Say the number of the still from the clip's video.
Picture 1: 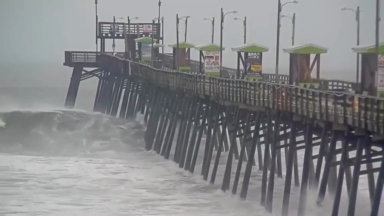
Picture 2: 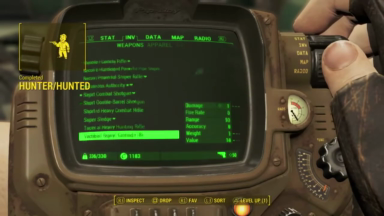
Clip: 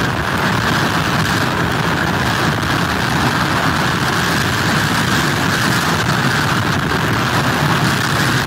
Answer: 1